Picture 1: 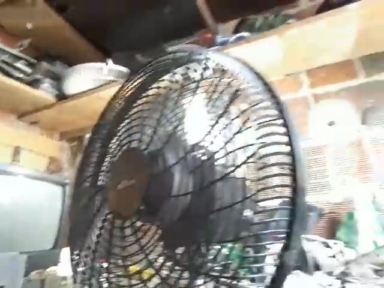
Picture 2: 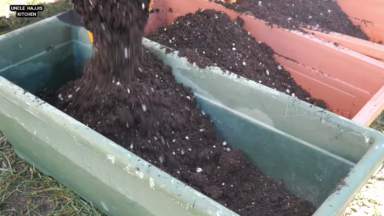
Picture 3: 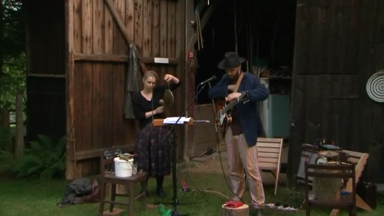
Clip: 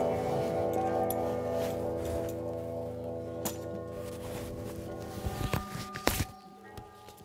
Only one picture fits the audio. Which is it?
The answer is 3